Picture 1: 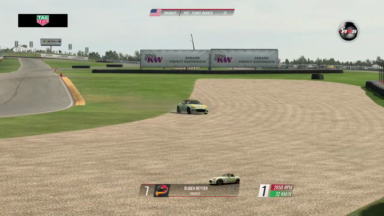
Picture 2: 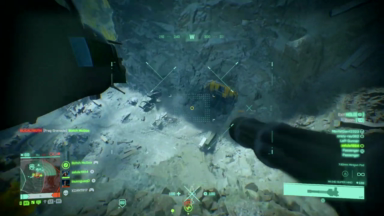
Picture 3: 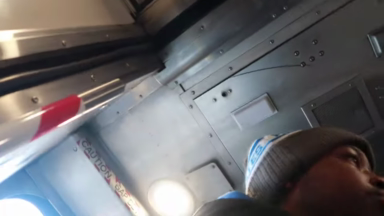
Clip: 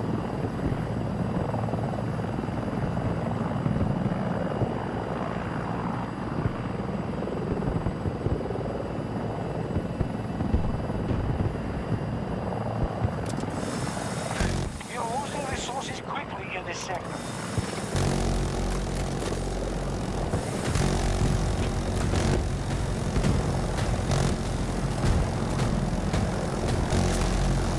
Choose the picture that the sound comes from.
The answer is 2